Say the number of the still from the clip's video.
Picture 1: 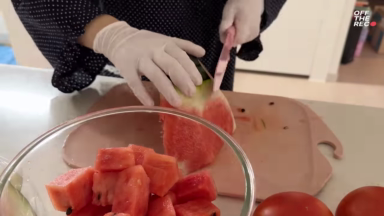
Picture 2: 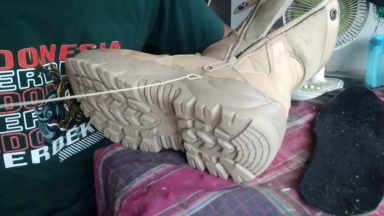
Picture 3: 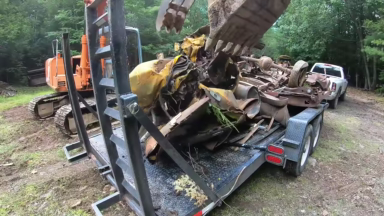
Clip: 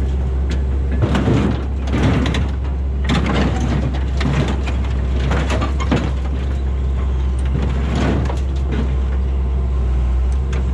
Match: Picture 3